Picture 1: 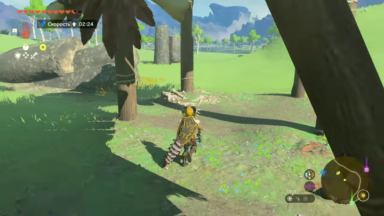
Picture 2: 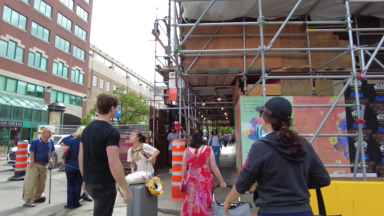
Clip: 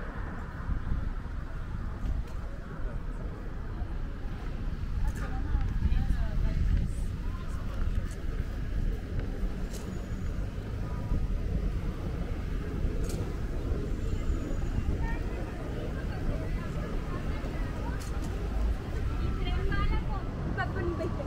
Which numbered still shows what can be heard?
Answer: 2